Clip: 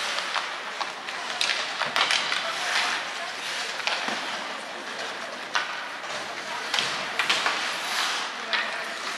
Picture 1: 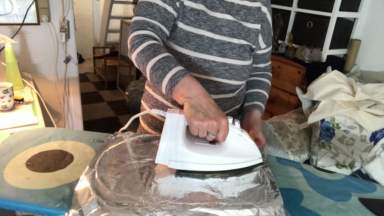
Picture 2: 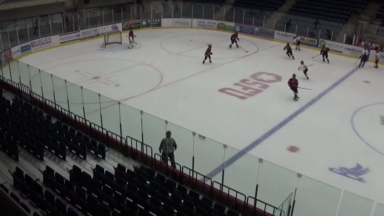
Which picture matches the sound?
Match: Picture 2